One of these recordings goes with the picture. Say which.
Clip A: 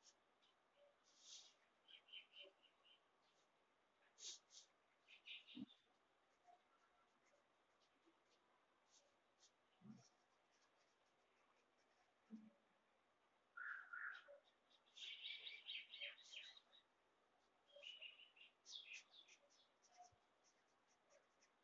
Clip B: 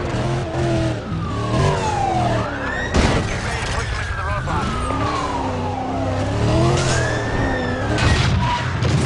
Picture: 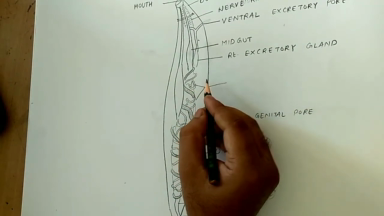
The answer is A